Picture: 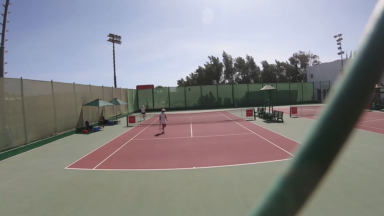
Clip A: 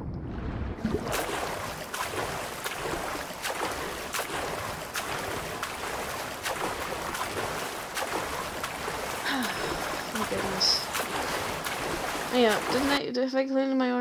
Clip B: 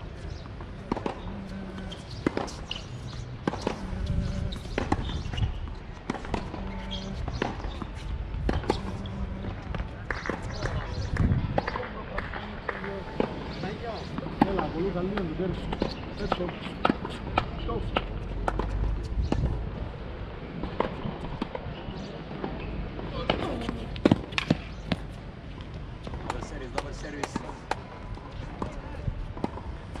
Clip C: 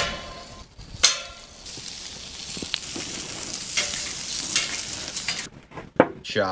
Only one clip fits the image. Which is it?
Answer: B